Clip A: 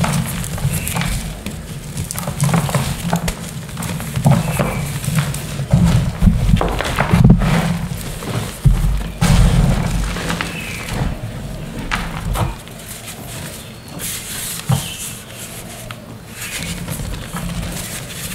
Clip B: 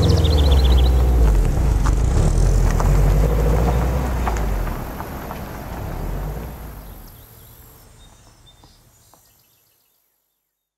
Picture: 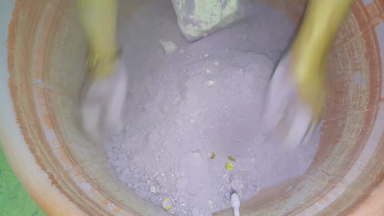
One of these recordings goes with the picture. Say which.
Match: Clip A